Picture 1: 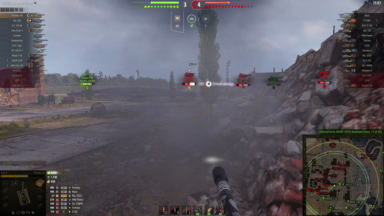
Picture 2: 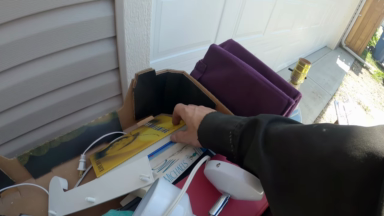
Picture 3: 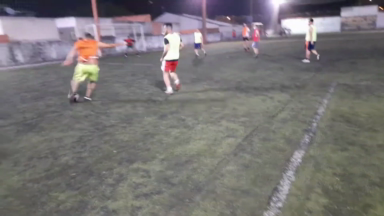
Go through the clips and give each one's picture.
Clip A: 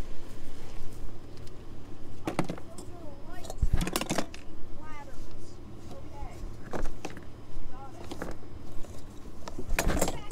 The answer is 2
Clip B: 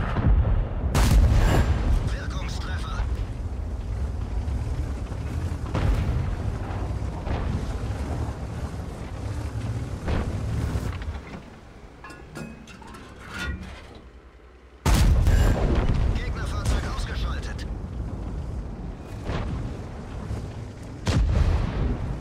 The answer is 1